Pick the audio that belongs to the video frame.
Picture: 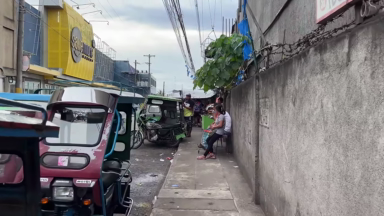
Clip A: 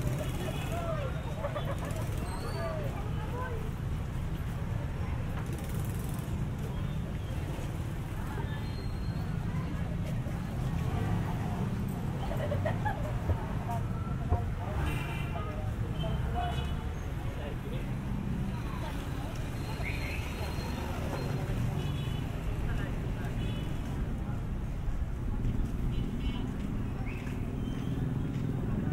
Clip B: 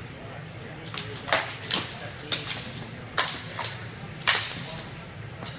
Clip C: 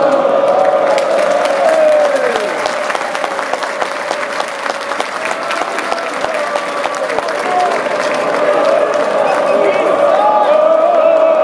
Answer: A